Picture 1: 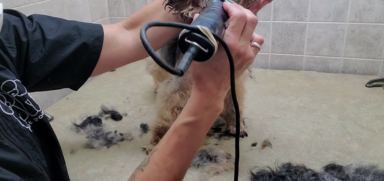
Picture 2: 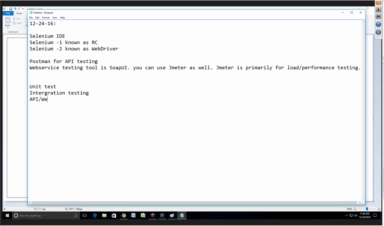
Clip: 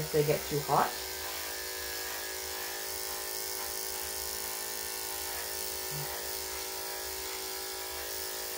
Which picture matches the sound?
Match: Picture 1